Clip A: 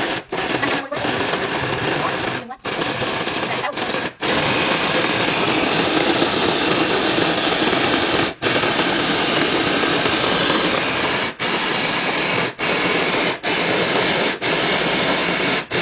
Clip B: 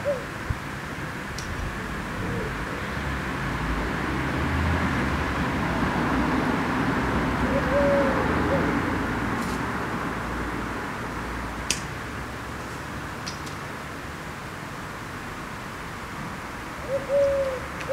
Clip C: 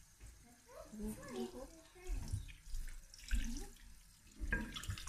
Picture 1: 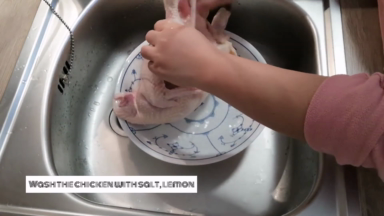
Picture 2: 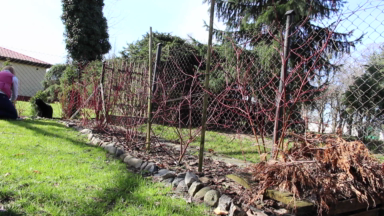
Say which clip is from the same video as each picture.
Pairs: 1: C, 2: B